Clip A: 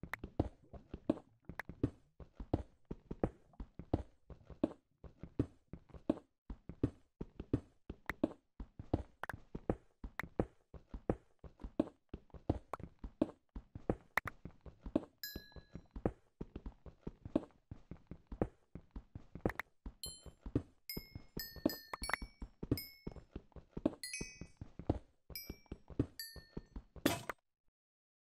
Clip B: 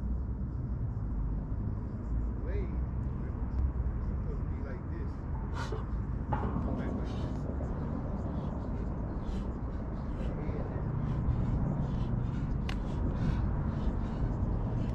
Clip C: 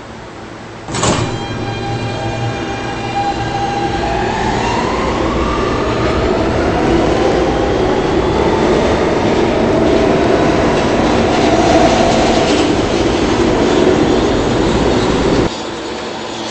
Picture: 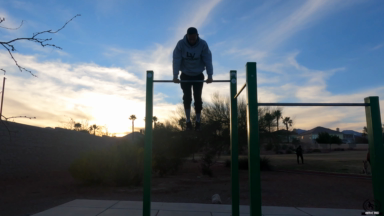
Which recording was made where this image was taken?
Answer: B